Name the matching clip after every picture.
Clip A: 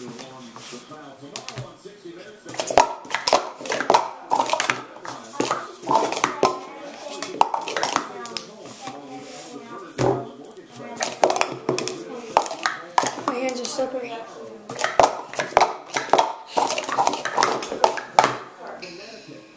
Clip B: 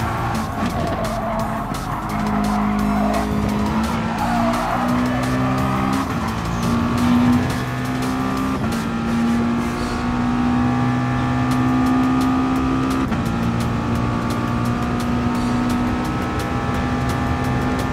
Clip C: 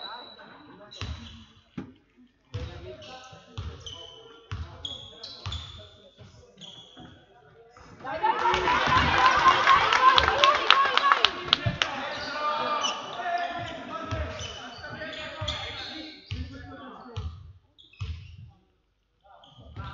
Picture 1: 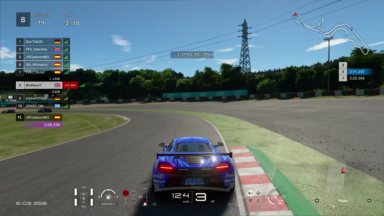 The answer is B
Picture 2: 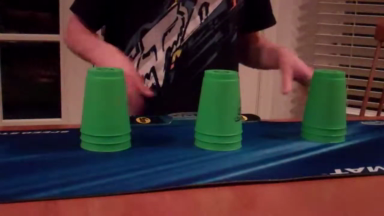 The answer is A